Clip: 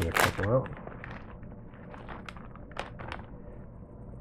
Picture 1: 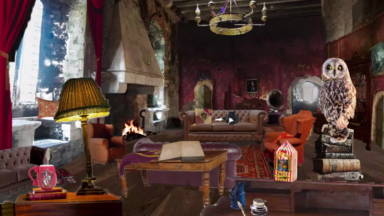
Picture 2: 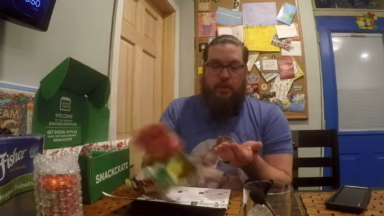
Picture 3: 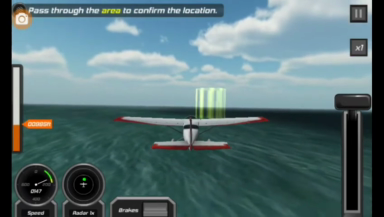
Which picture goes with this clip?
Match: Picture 2